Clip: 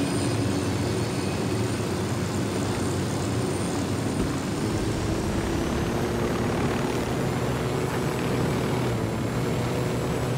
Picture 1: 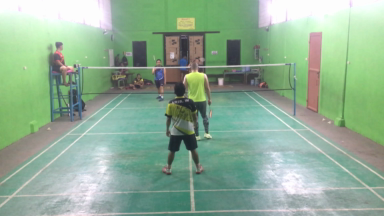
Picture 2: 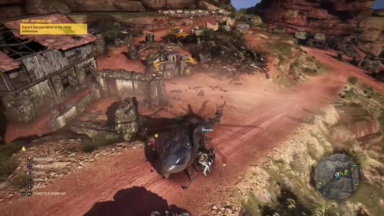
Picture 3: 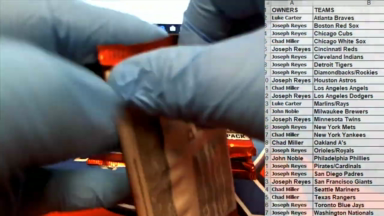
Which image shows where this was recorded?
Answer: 2